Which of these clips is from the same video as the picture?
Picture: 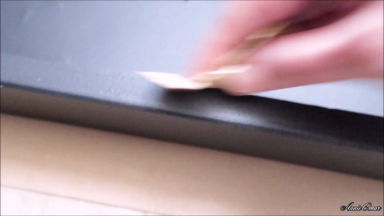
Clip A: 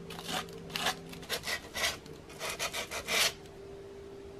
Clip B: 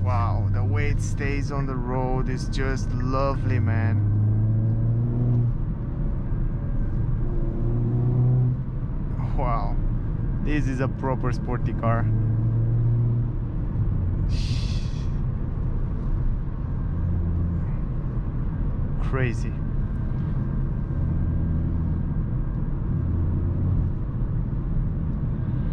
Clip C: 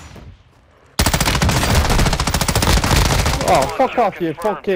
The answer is A